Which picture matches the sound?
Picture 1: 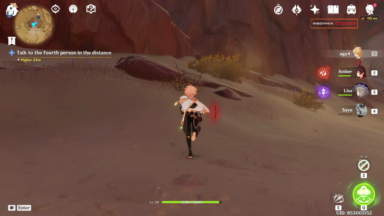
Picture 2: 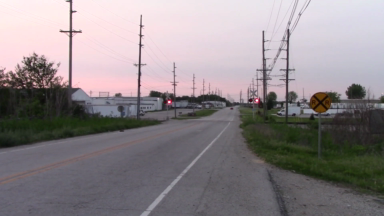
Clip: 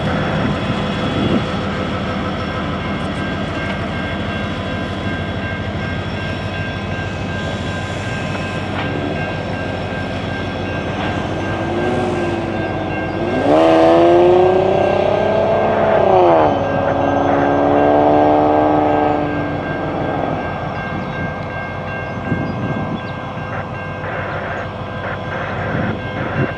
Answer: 2